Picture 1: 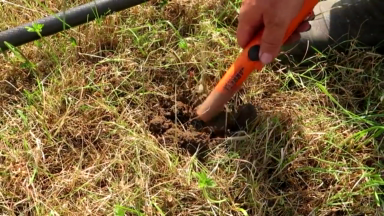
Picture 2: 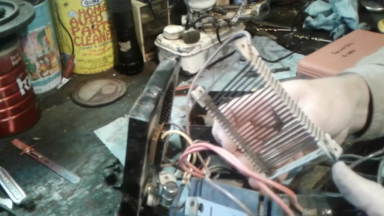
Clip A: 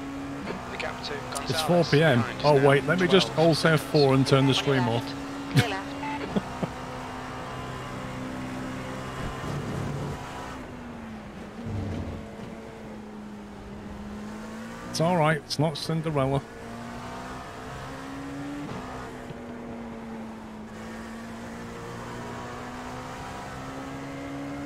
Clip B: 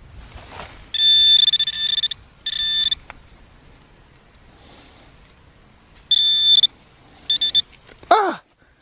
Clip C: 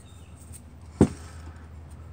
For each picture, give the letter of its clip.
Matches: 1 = B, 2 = C